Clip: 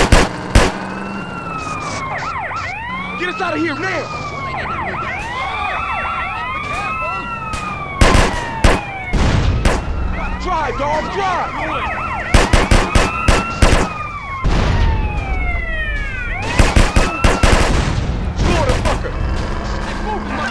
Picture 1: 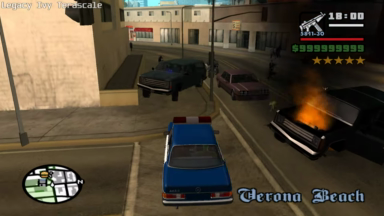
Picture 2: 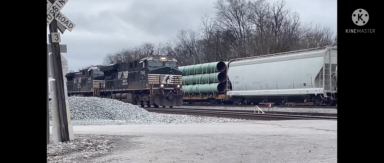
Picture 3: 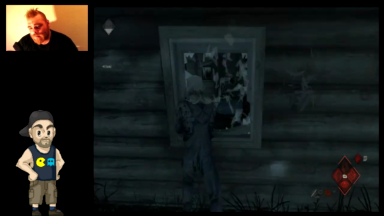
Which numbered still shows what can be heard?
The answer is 1